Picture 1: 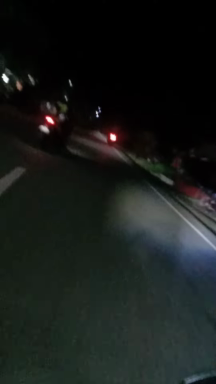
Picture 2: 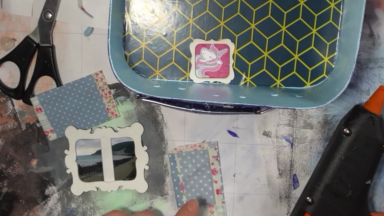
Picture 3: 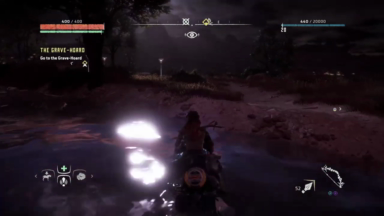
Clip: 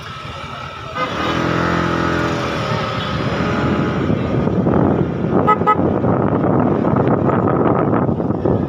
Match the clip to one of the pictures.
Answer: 1